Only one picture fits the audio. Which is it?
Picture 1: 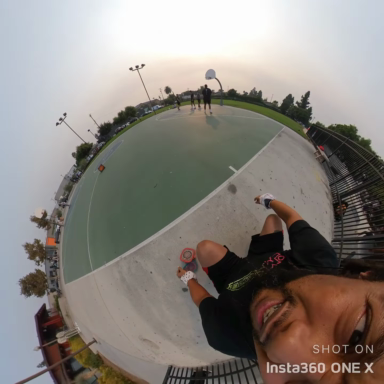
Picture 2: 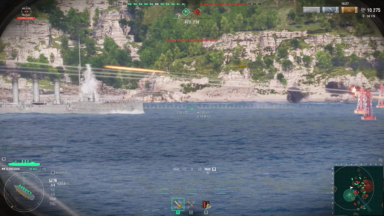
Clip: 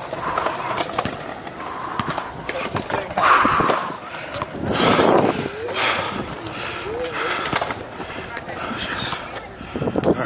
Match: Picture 1